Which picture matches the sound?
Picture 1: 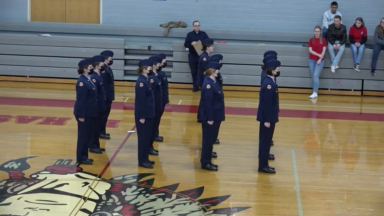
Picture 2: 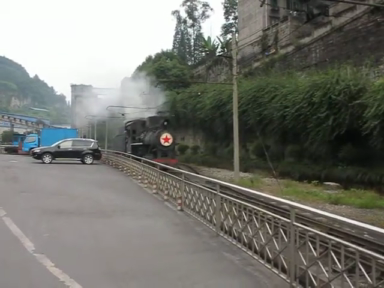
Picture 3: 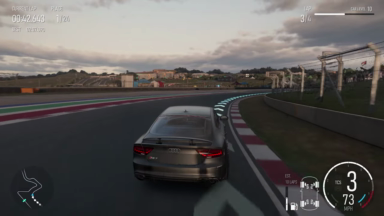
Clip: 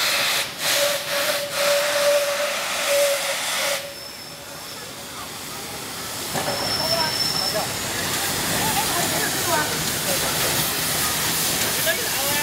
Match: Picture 2